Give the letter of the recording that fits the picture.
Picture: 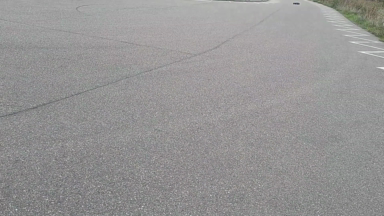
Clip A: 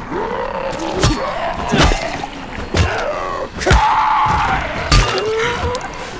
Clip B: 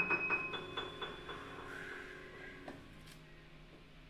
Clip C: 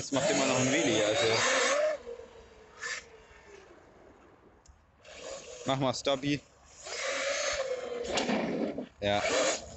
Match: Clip C